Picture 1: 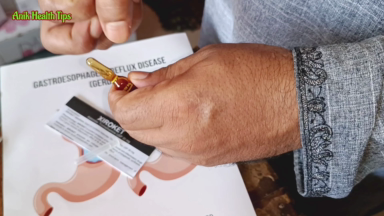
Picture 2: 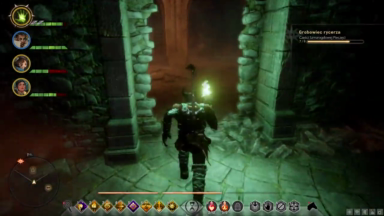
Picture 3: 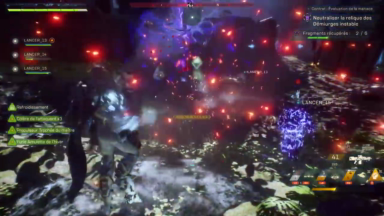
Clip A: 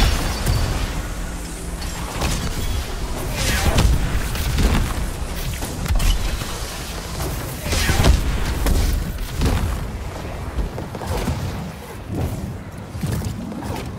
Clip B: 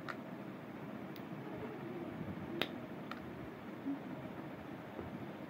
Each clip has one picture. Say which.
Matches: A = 3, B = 1